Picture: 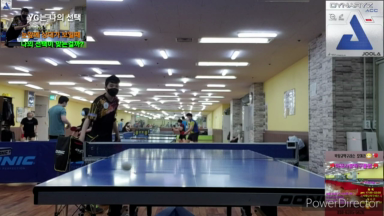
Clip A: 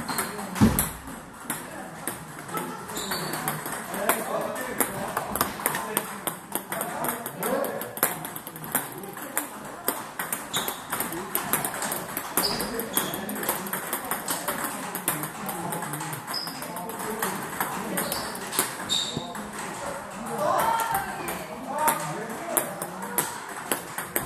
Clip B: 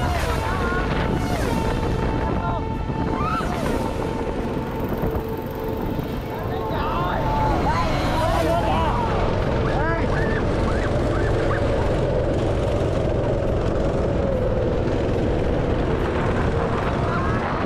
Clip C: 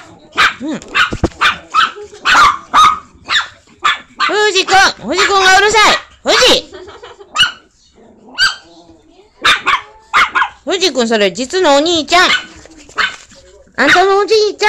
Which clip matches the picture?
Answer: A